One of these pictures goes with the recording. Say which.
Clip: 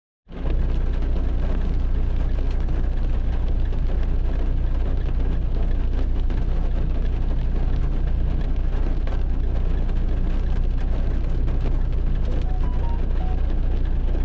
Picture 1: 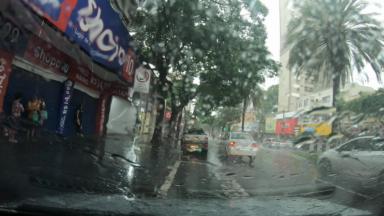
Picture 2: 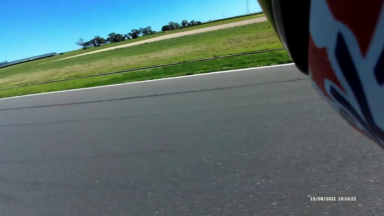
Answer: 1